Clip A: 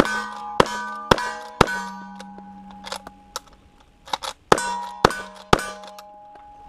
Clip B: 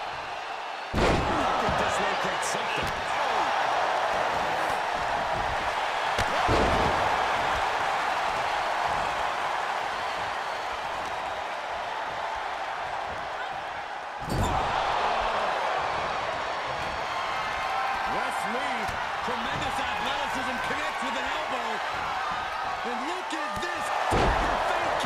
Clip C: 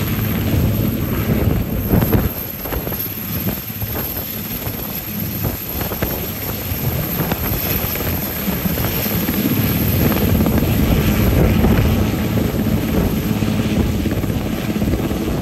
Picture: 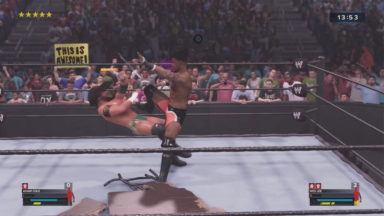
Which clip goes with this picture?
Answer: B